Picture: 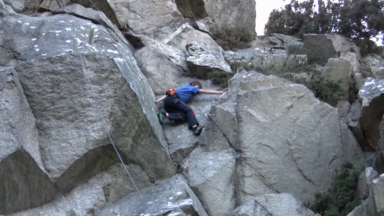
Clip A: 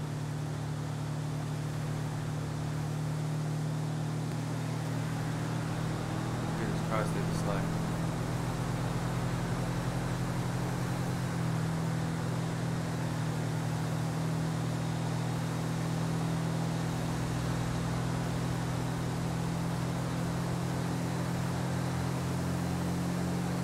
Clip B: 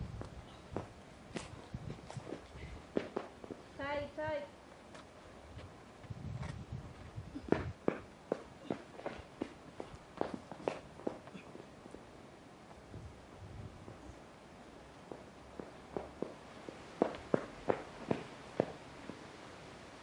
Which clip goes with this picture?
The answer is B